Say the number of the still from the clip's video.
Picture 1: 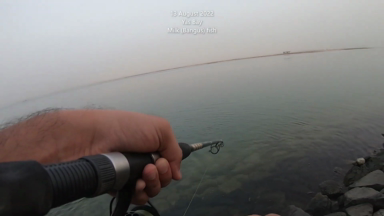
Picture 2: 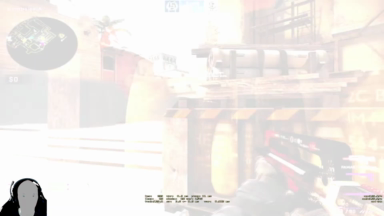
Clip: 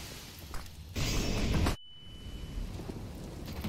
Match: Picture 2